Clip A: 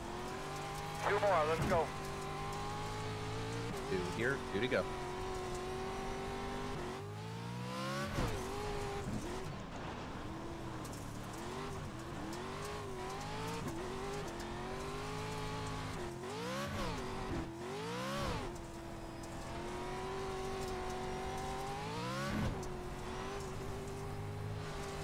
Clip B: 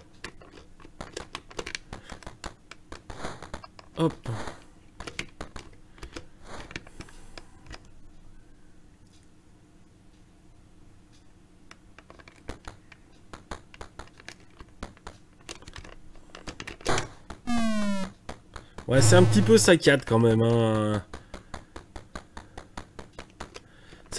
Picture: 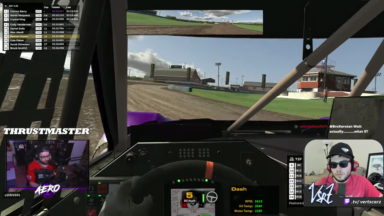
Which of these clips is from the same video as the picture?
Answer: A